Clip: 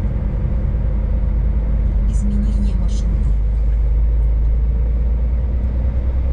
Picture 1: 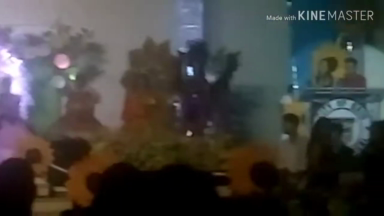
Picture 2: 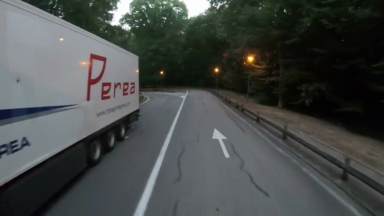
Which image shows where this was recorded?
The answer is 2